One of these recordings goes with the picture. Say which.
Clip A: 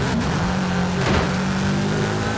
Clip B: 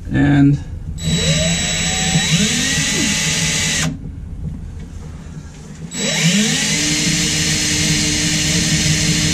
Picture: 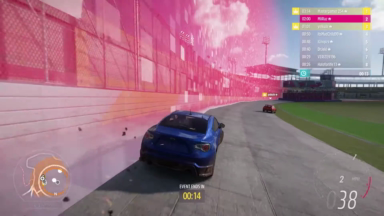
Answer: A